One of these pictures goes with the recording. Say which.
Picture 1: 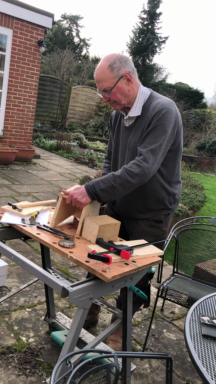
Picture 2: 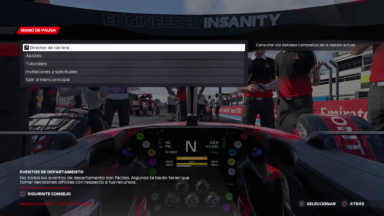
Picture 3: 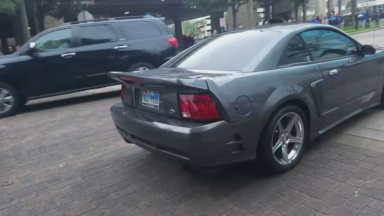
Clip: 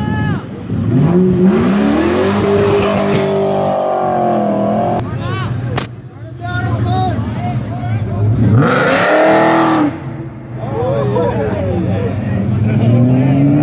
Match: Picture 3